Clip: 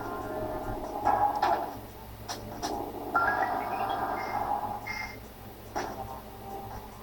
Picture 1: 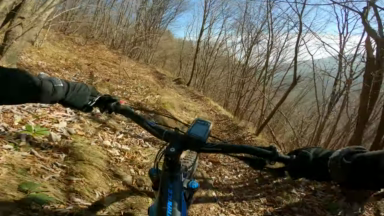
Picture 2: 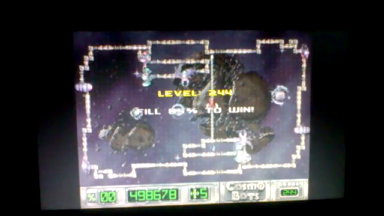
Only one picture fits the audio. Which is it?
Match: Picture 2